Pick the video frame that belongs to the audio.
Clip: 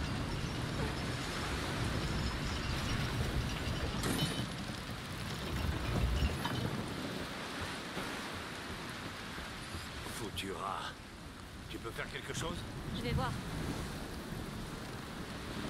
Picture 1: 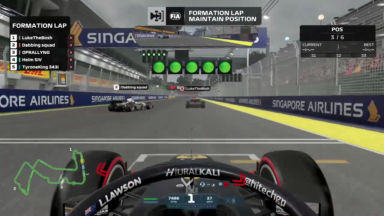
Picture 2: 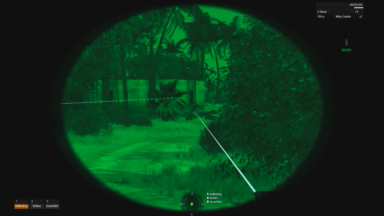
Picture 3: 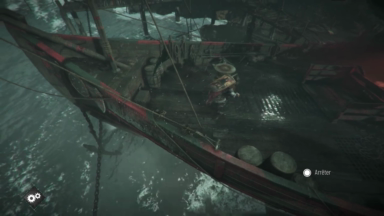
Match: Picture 3